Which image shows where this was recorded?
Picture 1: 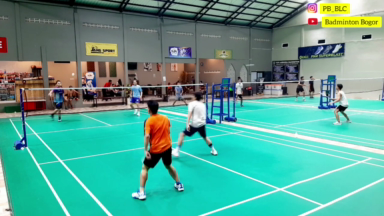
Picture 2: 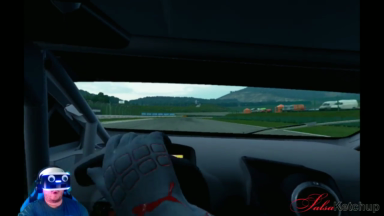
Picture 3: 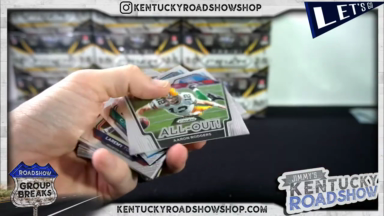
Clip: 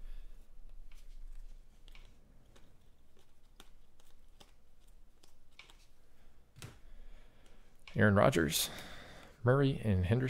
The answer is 3